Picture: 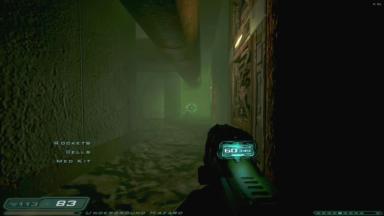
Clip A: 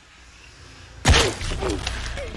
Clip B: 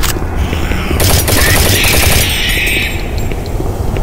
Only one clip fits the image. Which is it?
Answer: B